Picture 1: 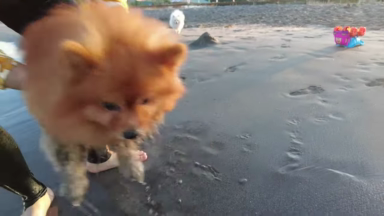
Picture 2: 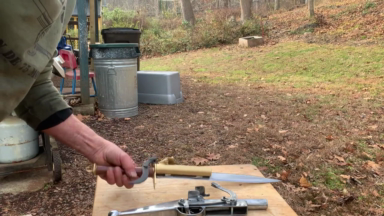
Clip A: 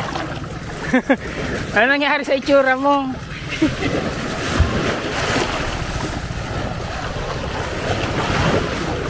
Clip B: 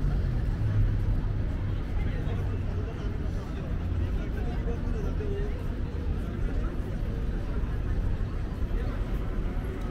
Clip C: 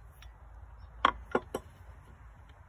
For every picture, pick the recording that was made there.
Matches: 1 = A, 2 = C